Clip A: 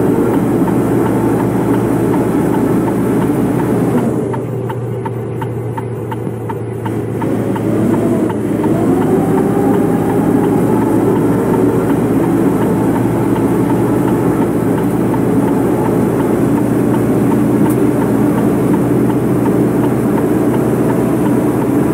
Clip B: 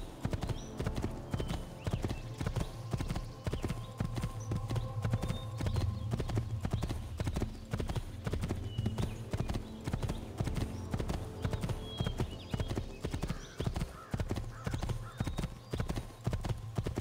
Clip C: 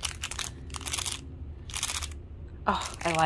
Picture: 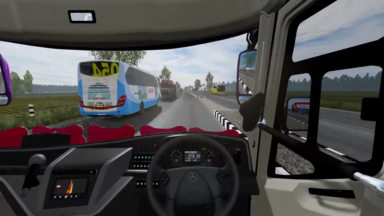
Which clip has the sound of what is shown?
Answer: A